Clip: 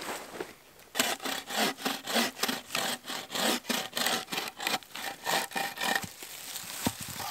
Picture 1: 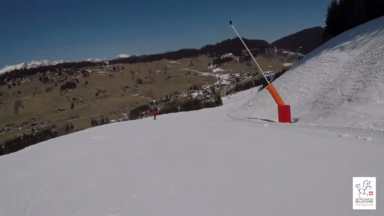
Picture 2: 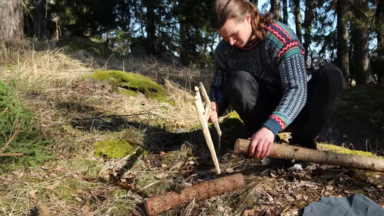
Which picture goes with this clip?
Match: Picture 2